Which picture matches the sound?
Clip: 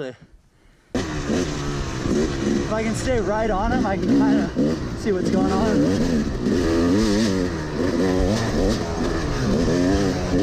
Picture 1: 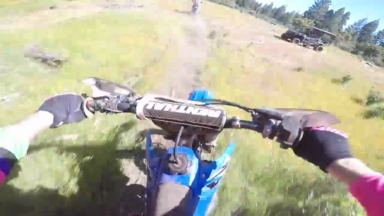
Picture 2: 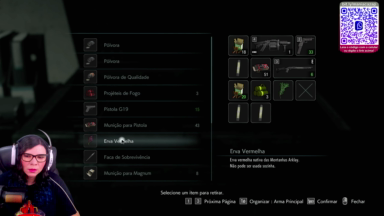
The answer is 1